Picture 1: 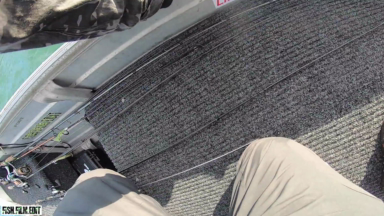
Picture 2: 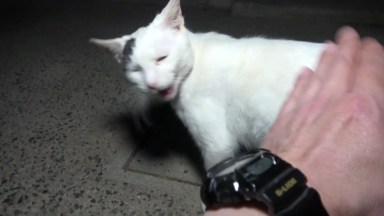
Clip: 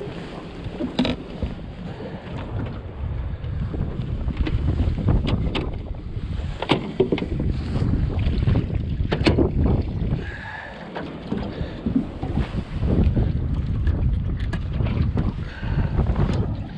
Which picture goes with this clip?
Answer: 1